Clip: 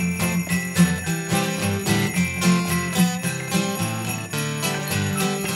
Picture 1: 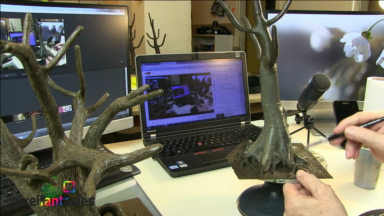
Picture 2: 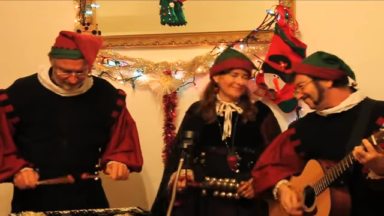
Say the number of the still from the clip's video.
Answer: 2